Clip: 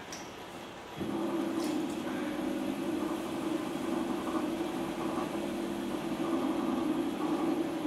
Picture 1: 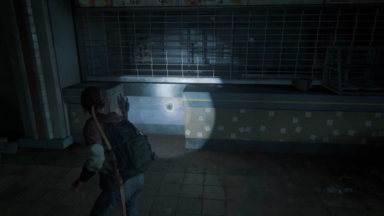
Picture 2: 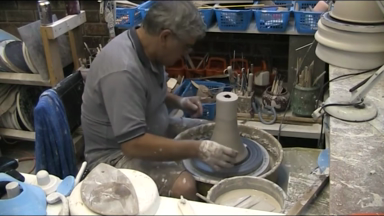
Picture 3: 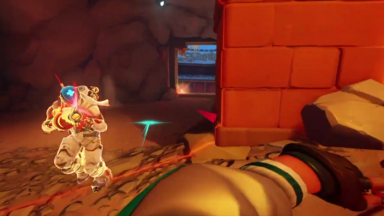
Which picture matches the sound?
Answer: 2